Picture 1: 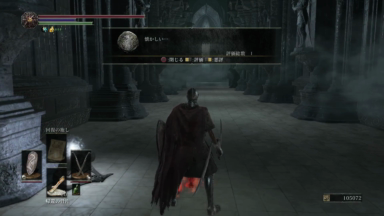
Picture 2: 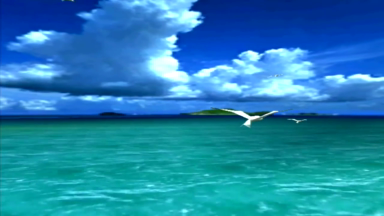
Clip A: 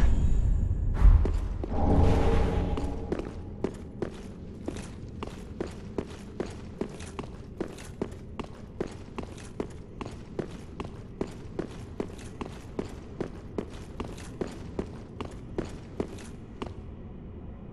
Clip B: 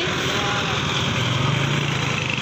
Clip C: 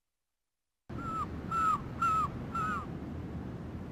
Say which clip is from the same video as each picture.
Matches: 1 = A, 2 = C